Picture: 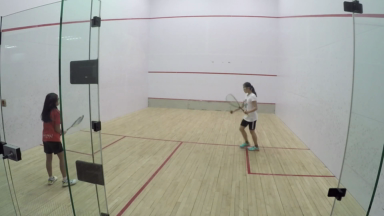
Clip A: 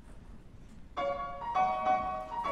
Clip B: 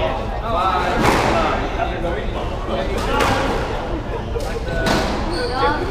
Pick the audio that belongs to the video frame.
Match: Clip B